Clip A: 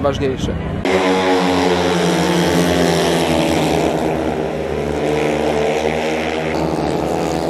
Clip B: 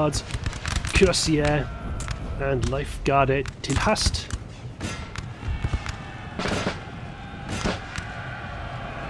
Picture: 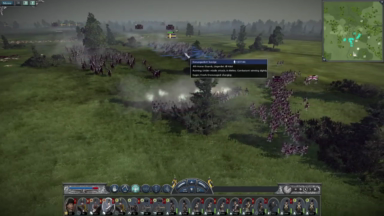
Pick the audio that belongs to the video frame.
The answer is B